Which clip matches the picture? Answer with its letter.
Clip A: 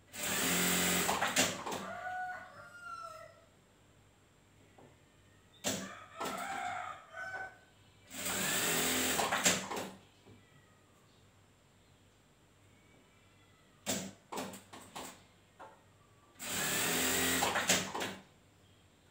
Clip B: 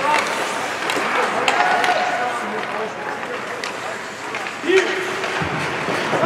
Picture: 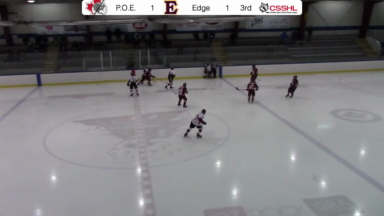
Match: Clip B